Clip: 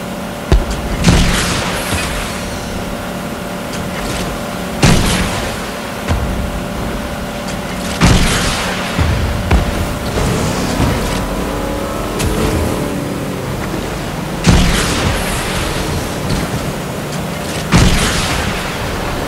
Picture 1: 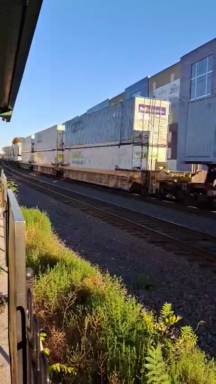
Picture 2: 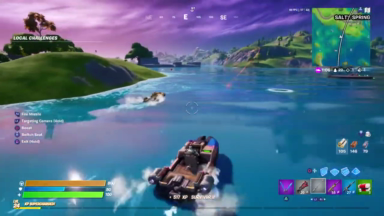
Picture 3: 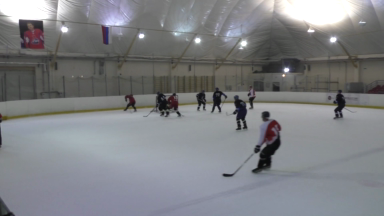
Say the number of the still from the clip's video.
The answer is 2